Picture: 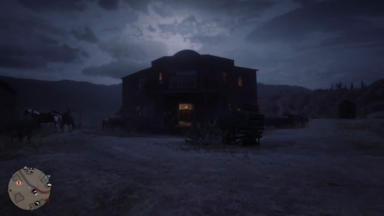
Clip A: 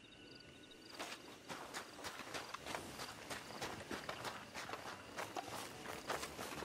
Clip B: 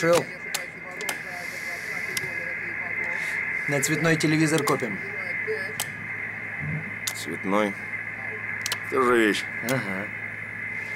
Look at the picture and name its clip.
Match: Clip A